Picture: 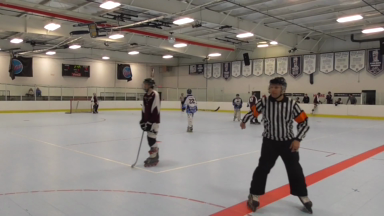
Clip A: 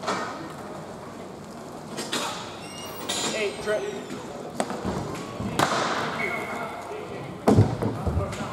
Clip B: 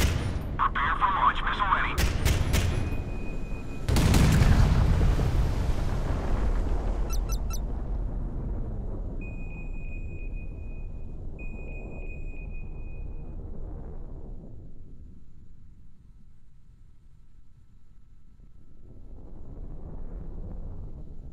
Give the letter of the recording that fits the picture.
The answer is A